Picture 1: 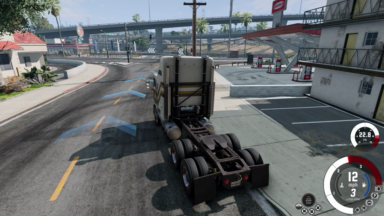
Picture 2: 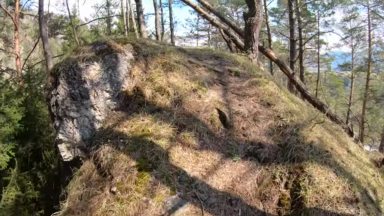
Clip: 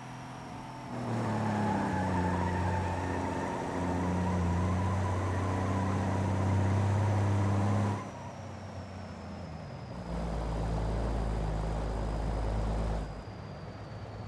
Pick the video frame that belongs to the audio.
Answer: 1